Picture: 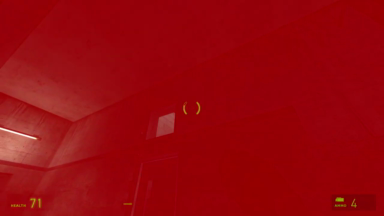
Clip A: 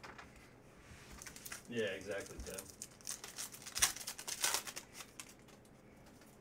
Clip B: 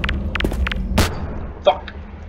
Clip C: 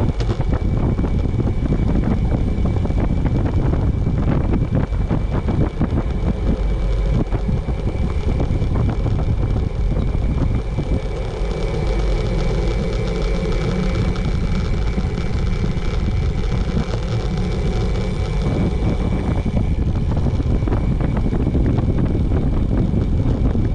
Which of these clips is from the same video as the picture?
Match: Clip B